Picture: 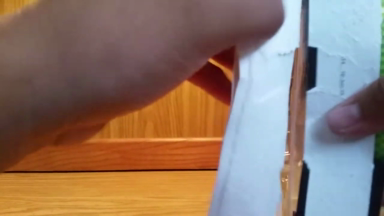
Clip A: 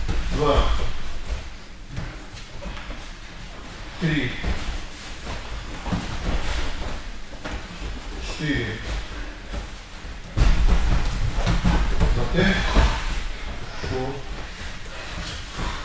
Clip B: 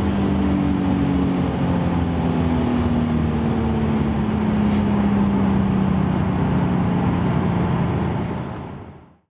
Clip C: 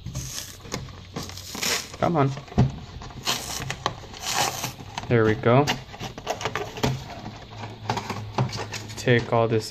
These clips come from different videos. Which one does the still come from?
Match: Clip C